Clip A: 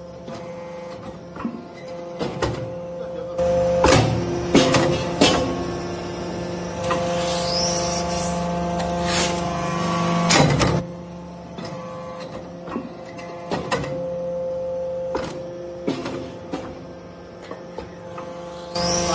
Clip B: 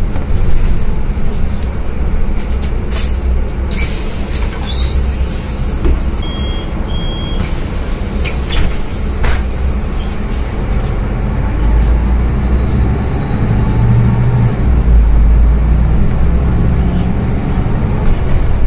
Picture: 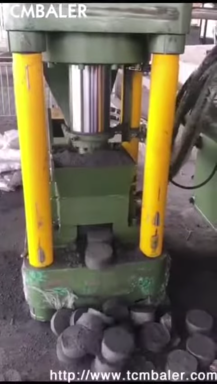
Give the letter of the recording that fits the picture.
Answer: A